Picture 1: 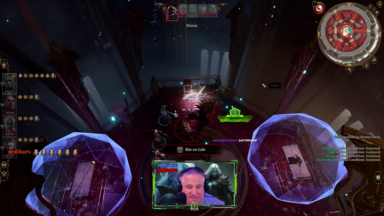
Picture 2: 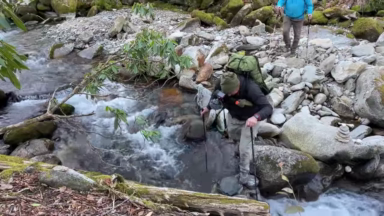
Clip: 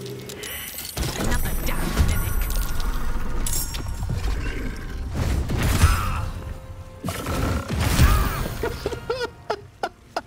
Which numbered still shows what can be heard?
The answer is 1